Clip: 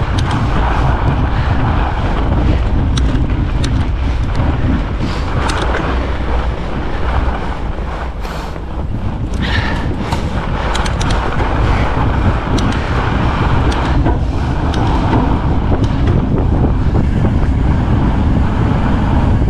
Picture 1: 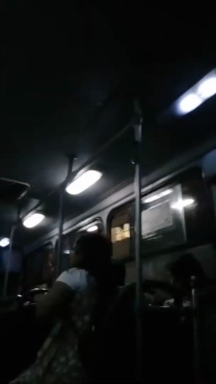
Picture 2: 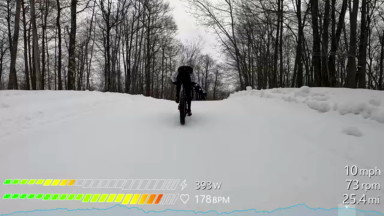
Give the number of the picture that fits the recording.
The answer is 2